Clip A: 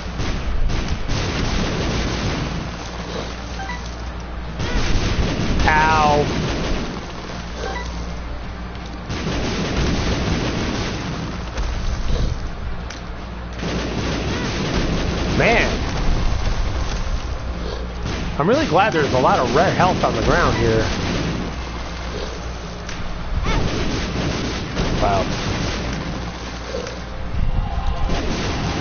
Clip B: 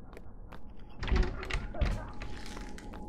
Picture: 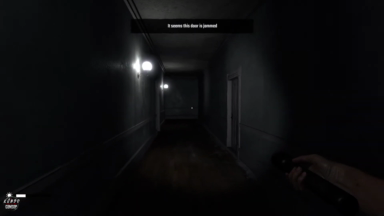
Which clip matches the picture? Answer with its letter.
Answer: B